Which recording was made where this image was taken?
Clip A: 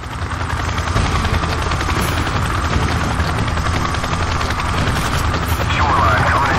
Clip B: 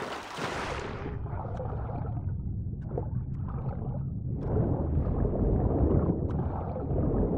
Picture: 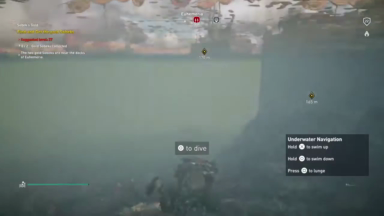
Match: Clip B